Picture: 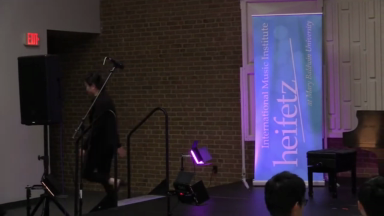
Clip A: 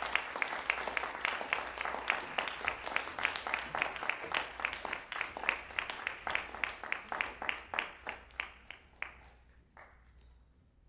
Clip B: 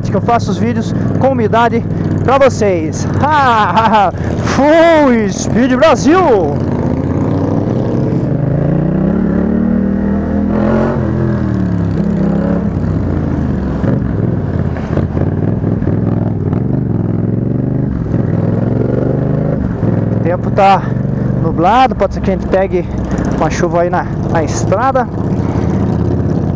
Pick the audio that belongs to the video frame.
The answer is A